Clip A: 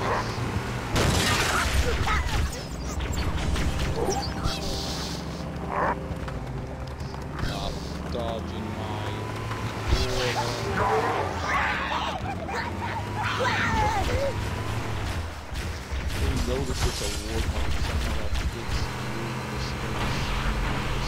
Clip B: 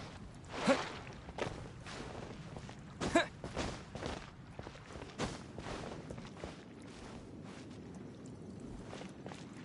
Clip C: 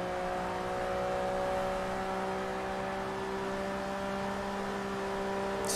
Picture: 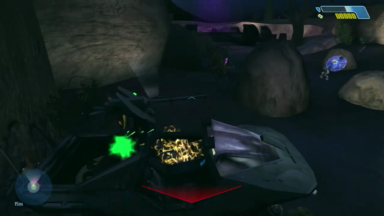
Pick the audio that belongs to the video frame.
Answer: A